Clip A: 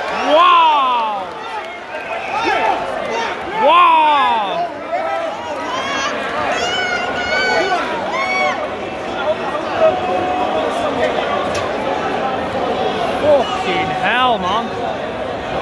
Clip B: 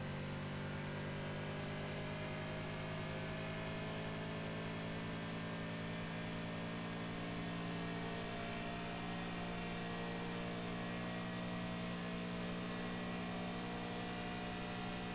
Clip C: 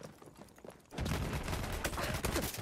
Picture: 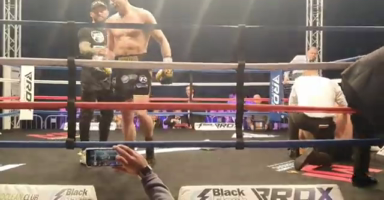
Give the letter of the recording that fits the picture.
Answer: A